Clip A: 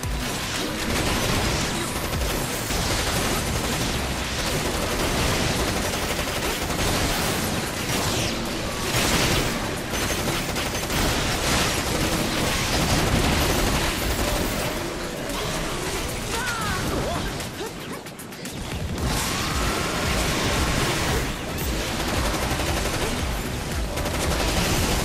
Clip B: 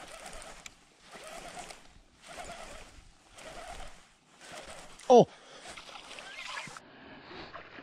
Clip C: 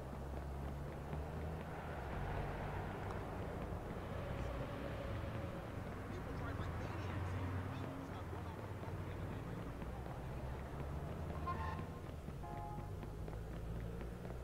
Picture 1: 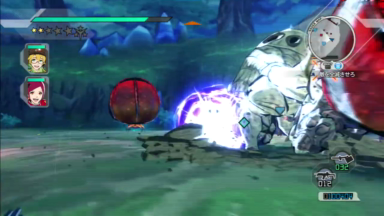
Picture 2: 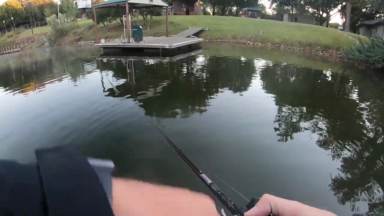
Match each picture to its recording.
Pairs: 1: A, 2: B